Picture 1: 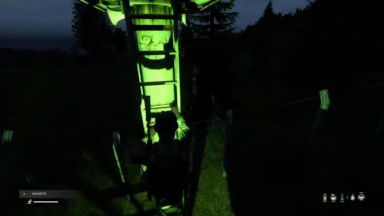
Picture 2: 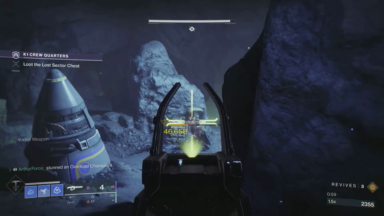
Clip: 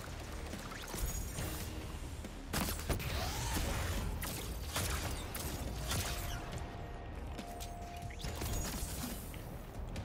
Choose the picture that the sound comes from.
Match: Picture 2